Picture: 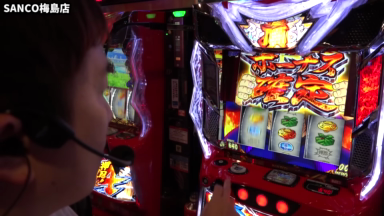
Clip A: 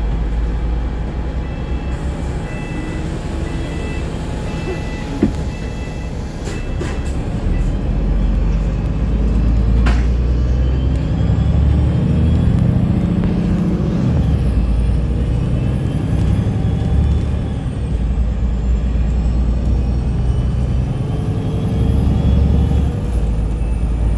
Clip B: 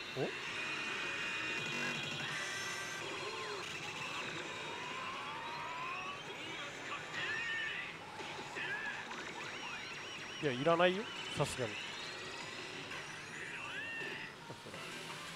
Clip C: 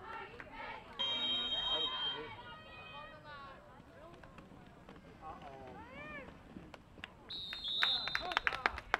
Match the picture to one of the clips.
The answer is B